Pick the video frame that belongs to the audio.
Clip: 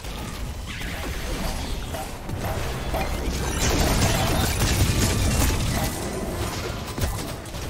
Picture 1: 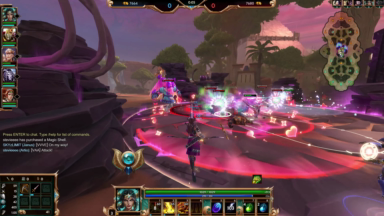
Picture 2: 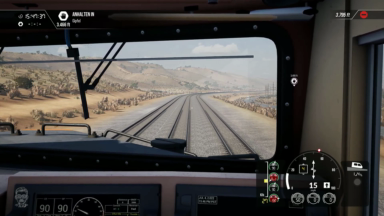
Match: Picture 1